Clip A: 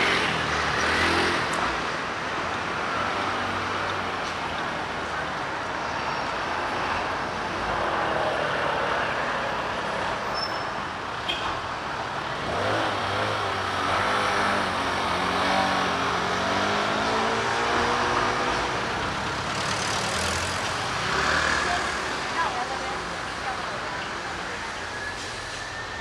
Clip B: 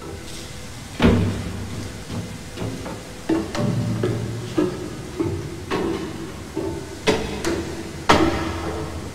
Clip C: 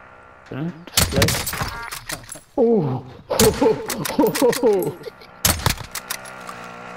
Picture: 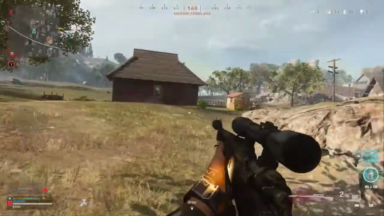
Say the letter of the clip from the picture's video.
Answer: C